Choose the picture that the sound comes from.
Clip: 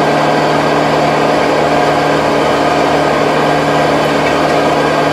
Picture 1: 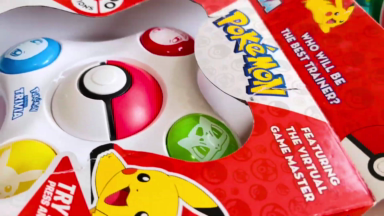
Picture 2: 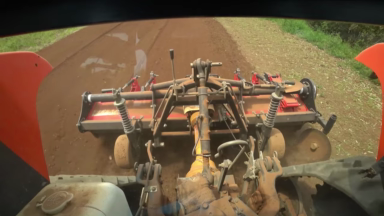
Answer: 2